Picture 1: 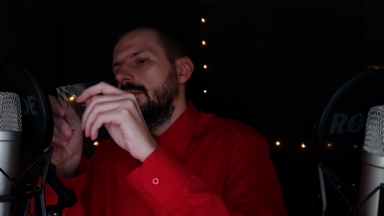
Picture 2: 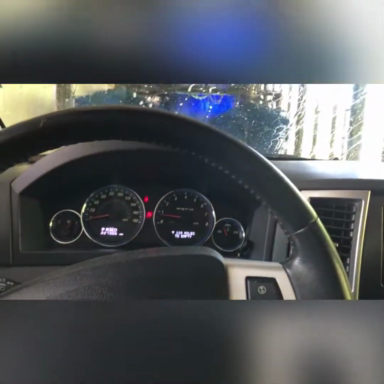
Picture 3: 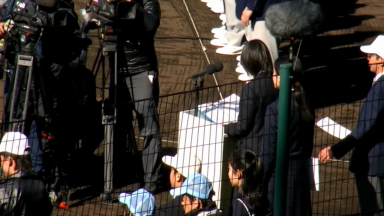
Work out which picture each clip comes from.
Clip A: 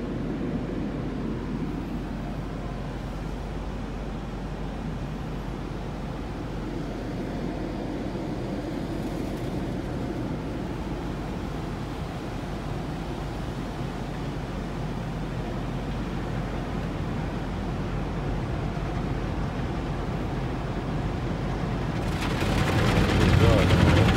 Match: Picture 2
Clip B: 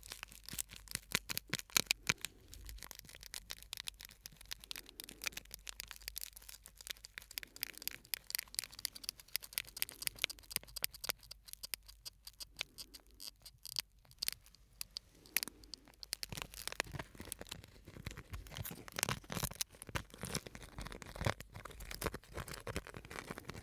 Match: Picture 1